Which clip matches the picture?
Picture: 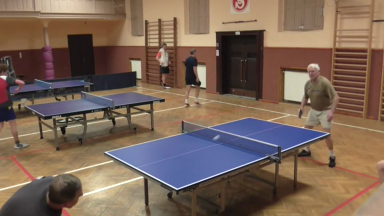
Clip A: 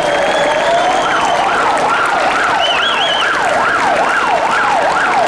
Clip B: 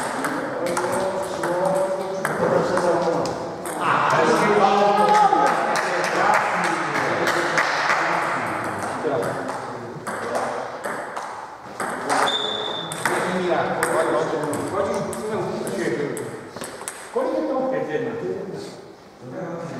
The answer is B